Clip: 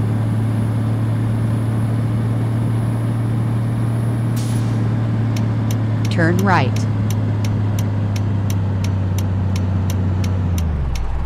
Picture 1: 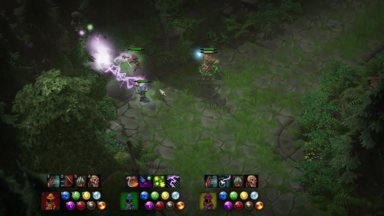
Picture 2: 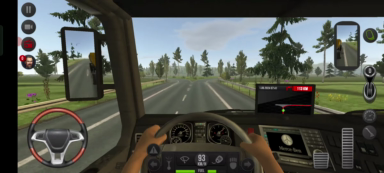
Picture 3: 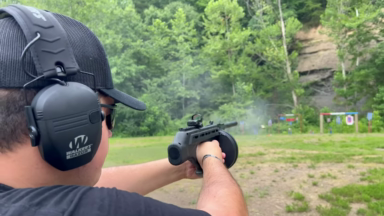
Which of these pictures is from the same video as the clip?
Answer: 2